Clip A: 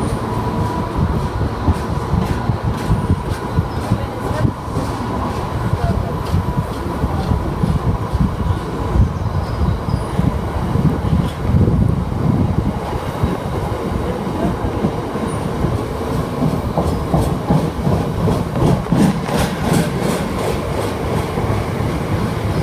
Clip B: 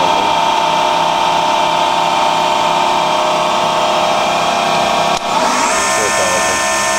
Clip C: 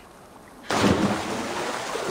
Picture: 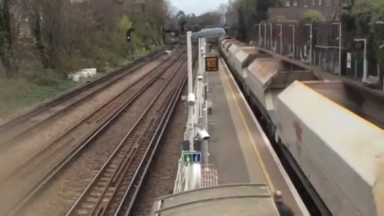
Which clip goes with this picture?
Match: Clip A